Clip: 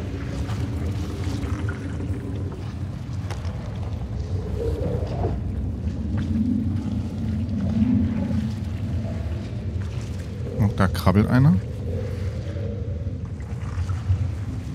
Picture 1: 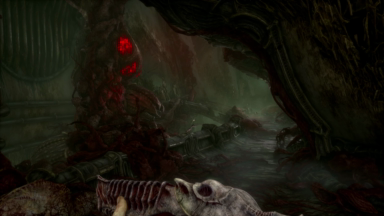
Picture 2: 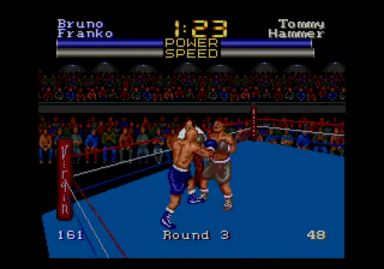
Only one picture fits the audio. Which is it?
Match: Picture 1